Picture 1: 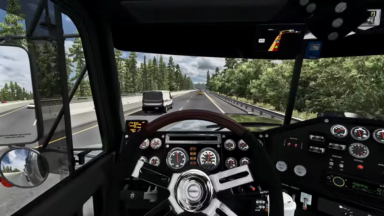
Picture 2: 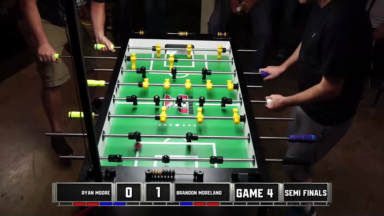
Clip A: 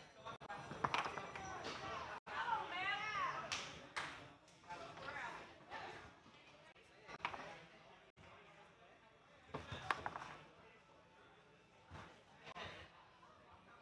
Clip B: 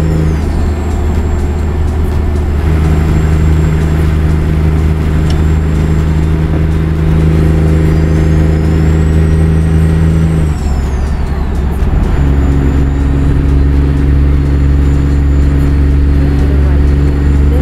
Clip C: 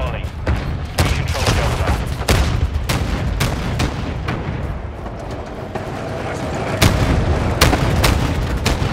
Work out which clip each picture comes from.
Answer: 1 B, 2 A